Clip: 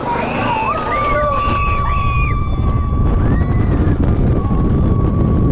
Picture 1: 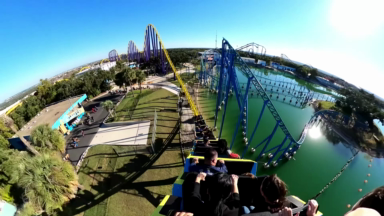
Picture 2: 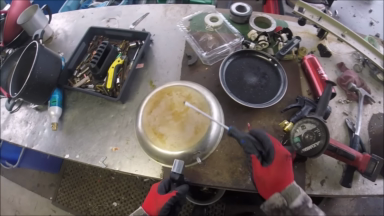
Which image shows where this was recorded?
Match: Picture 1